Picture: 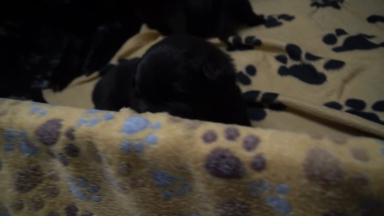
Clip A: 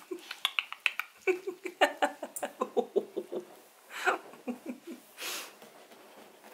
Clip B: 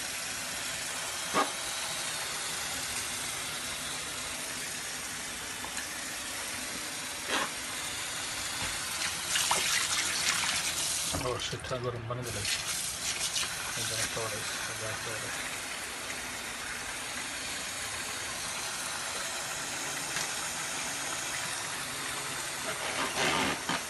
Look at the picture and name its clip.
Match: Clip A